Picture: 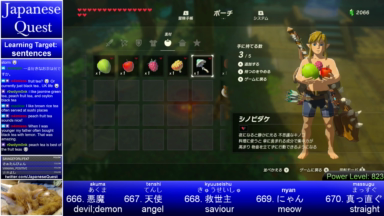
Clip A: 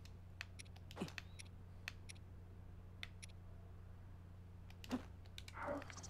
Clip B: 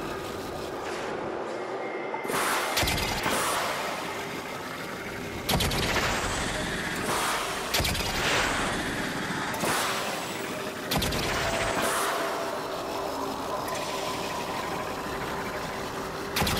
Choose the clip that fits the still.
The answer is A